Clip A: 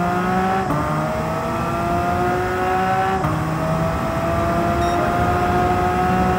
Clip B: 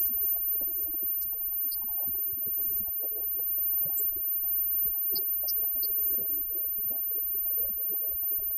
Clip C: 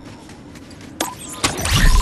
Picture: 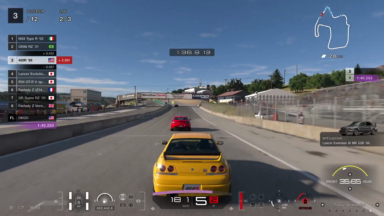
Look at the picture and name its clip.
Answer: A